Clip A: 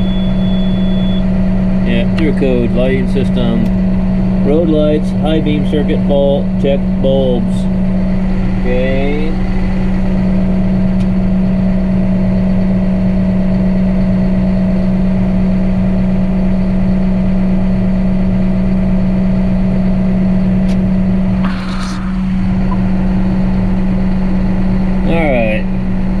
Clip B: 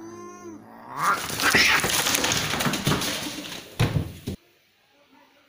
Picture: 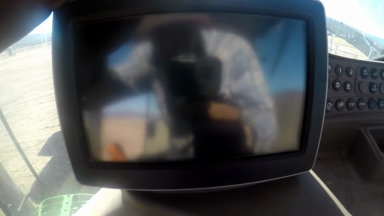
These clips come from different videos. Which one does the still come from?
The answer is A